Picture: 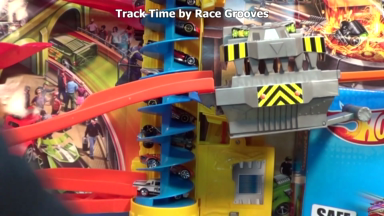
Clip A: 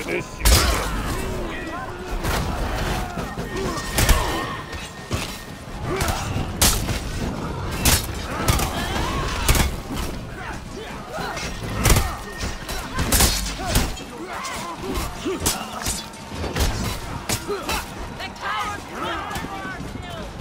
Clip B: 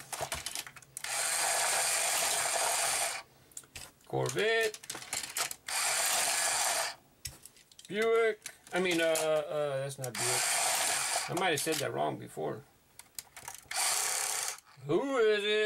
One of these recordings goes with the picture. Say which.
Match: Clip B